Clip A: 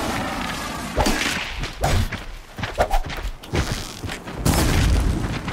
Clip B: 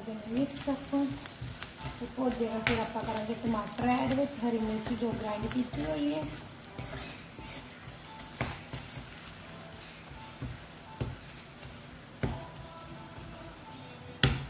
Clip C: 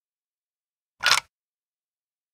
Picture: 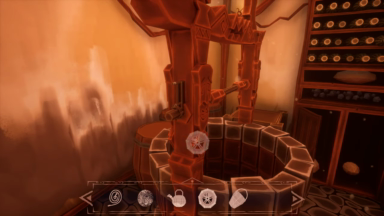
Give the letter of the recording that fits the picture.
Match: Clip C